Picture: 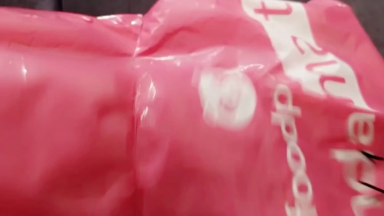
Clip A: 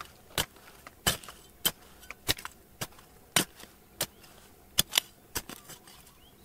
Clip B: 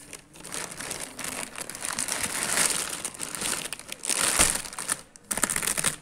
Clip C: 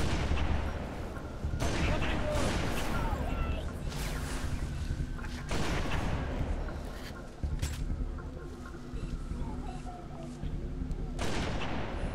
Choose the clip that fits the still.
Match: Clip B